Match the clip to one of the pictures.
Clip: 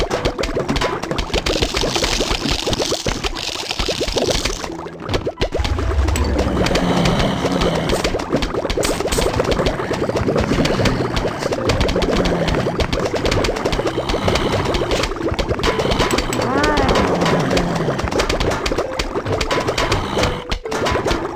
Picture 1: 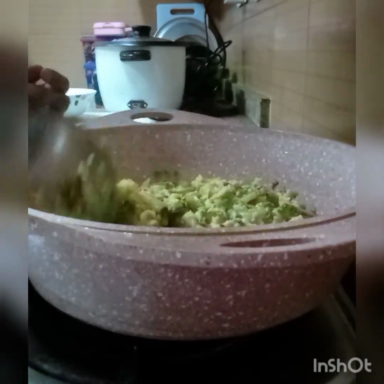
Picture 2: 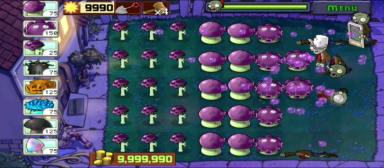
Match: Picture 2